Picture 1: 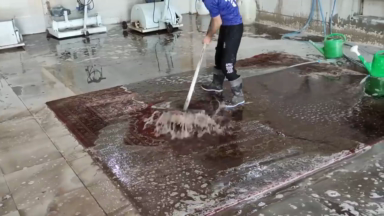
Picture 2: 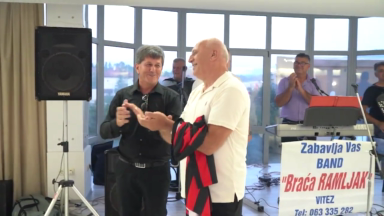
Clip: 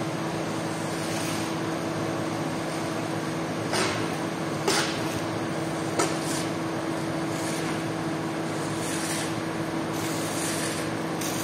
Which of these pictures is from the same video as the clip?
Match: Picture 1